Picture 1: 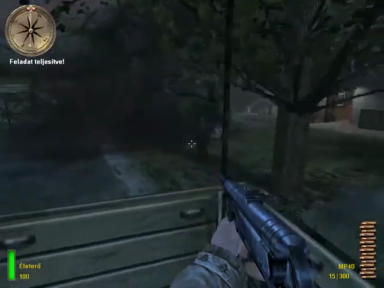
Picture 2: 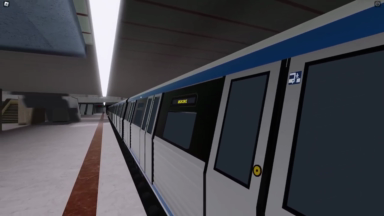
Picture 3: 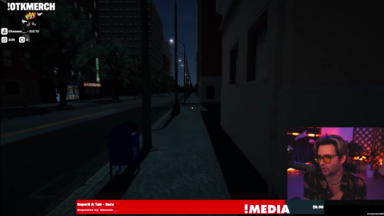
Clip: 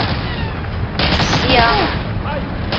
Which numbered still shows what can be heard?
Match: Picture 1